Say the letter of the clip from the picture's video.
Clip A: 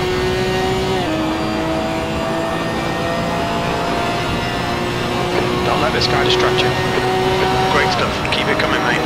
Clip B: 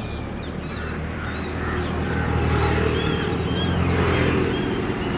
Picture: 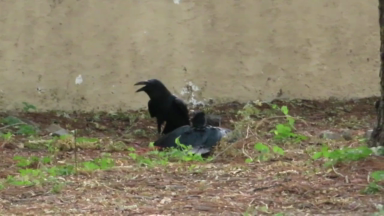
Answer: B